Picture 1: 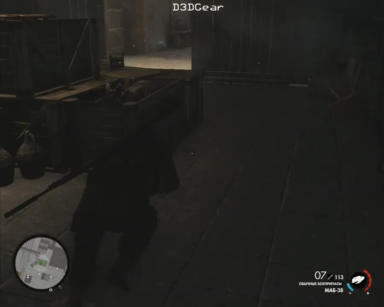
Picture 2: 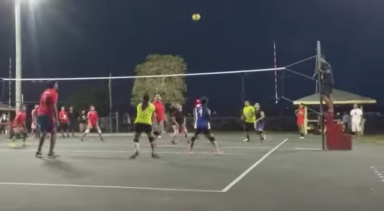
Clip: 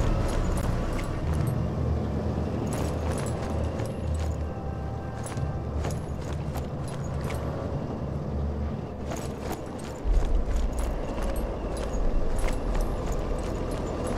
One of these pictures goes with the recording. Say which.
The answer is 1